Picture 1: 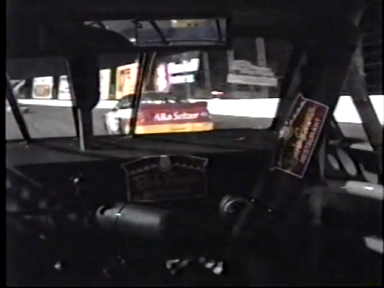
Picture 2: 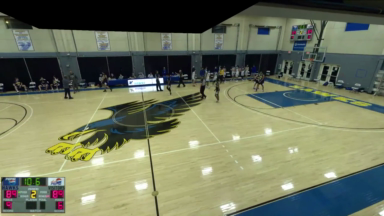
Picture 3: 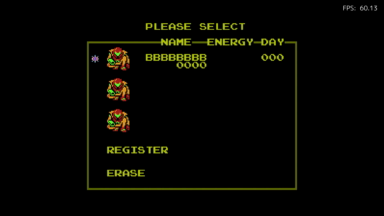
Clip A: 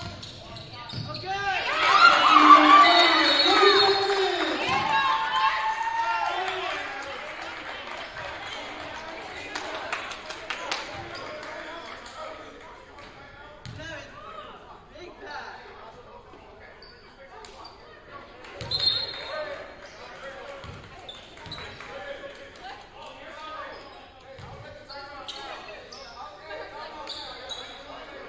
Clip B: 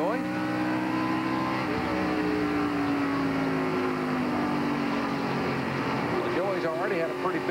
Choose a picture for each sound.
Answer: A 2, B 1